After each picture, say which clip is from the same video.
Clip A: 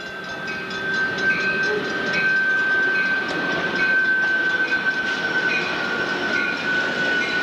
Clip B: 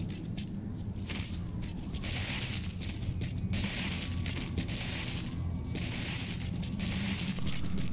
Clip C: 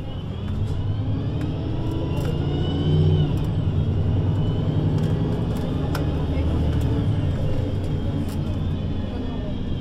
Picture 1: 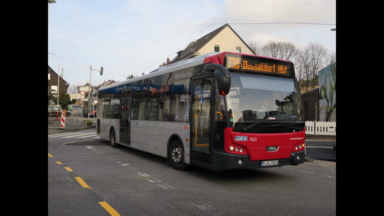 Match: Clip C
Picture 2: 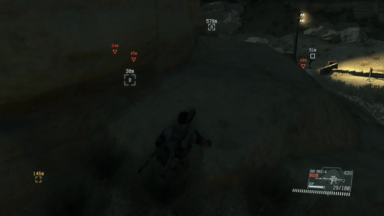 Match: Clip B